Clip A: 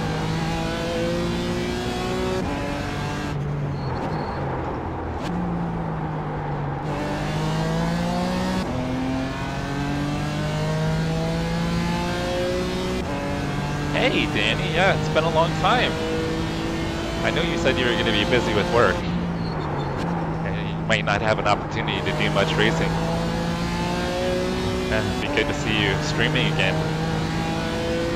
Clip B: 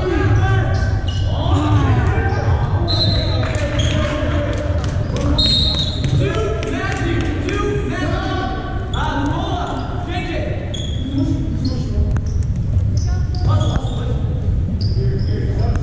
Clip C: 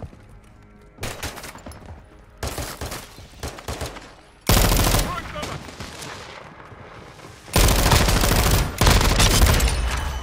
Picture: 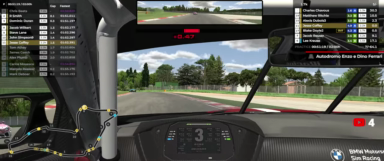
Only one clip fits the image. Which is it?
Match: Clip A